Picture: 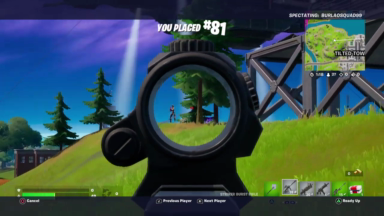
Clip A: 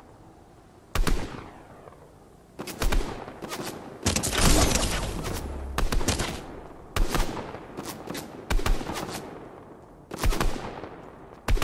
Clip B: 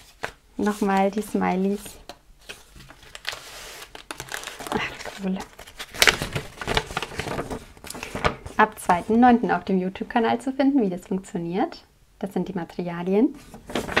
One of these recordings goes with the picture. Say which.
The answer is A